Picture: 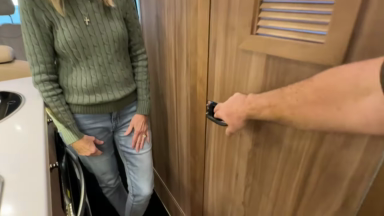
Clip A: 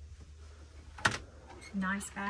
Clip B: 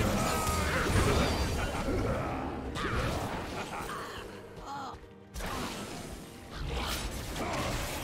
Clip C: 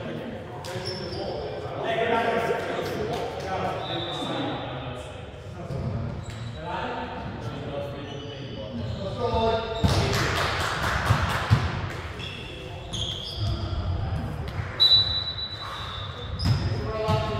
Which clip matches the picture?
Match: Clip A